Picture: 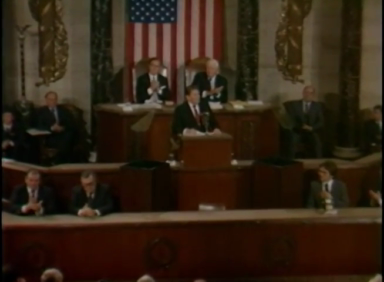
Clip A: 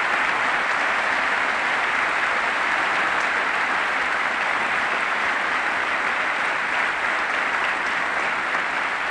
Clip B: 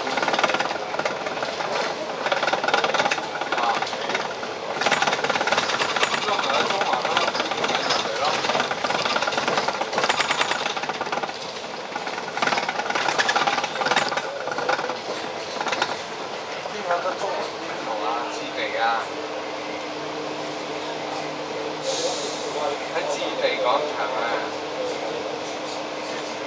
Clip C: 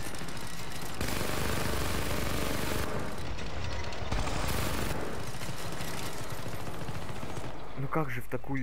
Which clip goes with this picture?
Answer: A